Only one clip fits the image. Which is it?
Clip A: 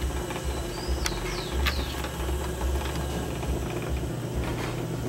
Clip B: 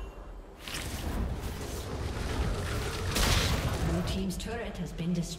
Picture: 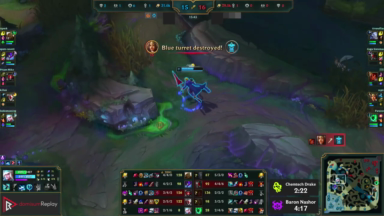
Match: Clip B